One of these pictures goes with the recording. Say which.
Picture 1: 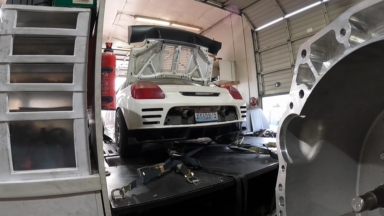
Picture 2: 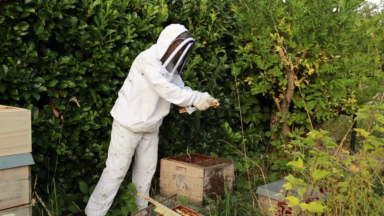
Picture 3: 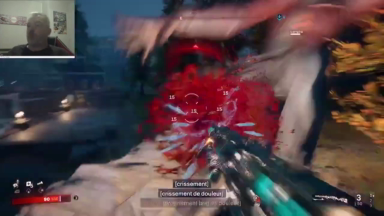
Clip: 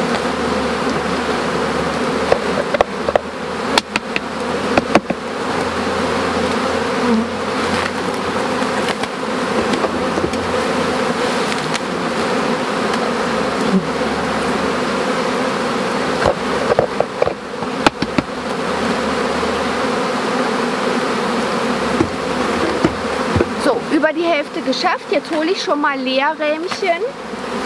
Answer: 2